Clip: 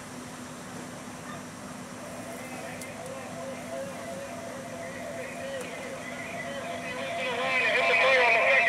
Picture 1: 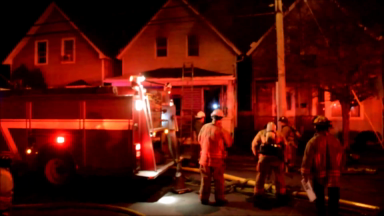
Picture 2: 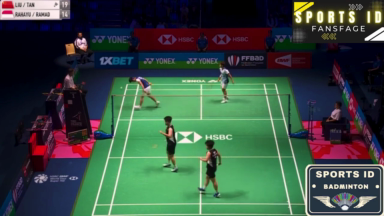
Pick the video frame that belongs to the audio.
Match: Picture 1